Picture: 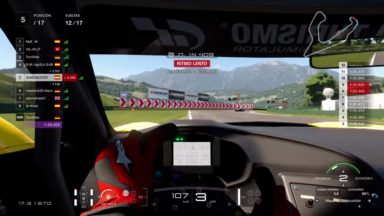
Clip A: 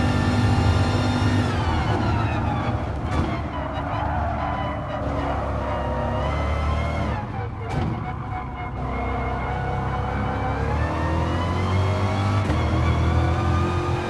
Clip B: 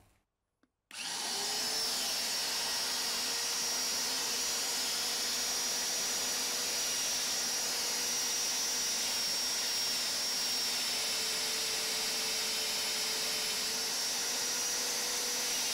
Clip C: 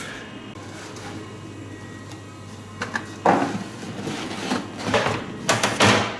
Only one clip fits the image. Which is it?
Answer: A